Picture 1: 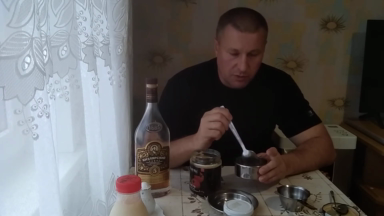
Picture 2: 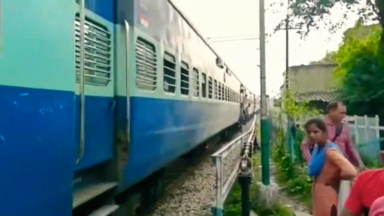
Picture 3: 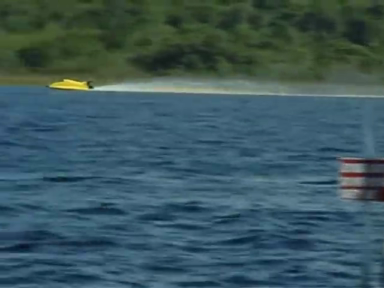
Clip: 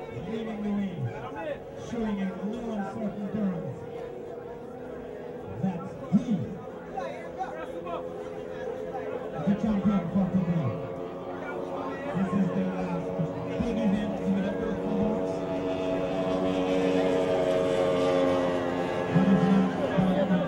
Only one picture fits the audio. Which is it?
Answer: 3